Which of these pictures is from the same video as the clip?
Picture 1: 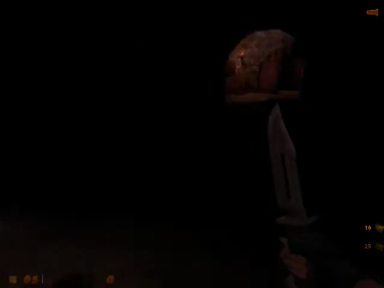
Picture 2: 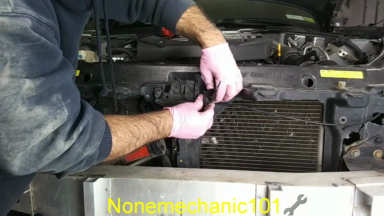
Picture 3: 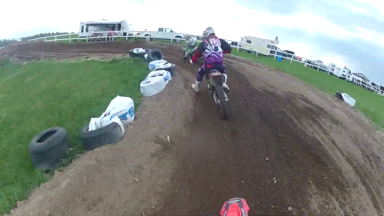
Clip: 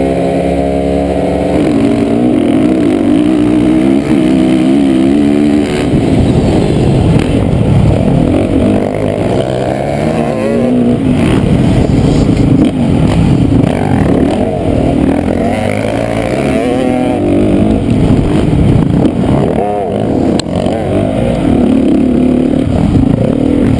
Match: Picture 3